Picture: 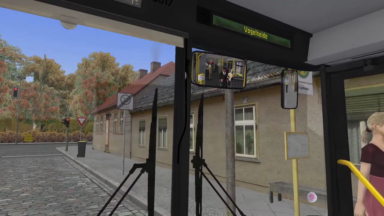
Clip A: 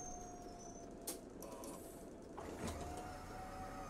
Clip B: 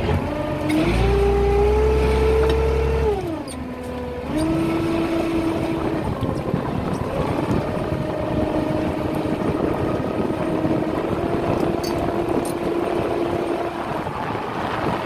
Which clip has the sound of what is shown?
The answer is A